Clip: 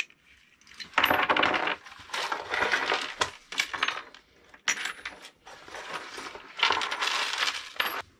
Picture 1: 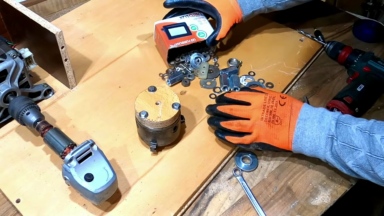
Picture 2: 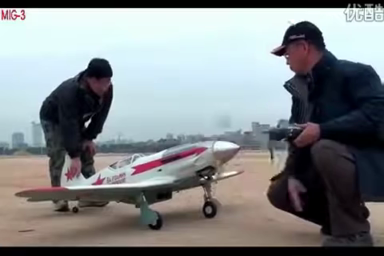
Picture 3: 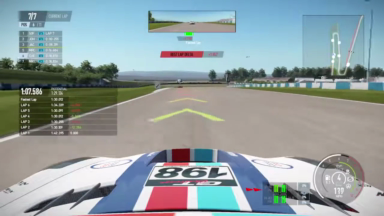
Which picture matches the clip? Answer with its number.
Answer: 1